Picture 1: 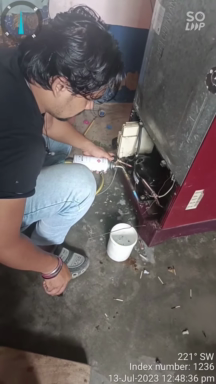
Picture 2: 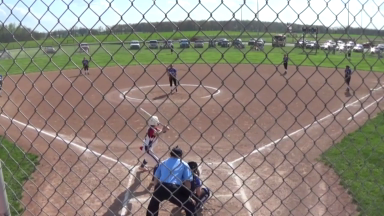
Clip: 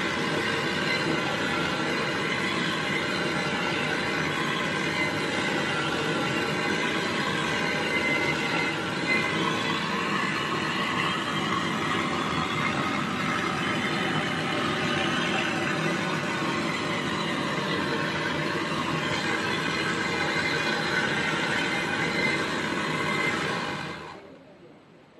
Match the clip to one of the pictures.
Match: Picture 1